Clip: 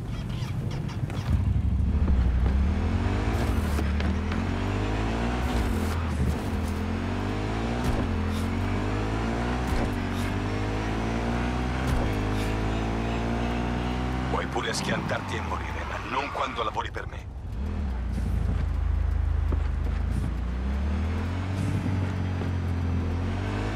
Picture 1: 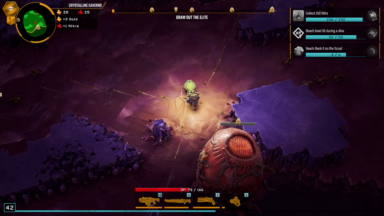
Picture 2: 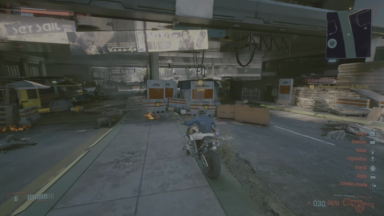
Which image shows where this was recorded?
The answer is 2